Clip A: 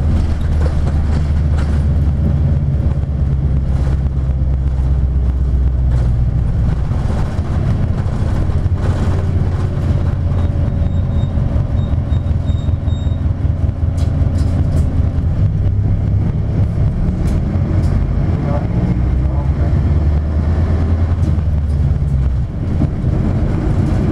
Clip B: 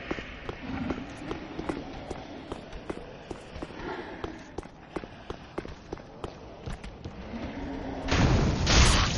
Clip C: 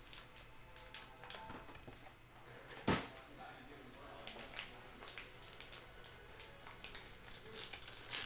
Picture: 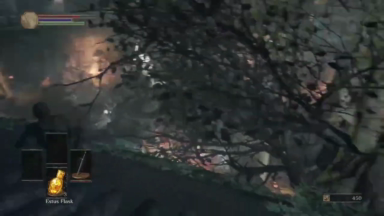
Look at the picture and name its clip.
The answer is B